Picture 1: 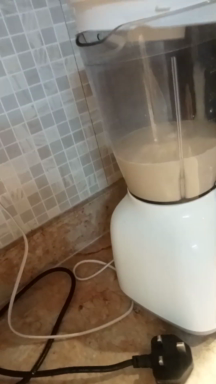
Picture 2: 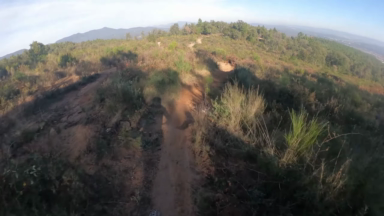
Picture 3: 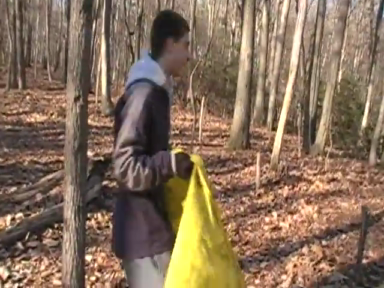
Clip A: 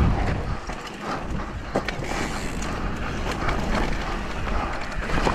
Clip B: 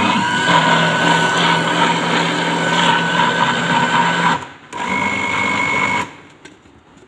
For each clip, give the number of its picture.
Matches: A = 2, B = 1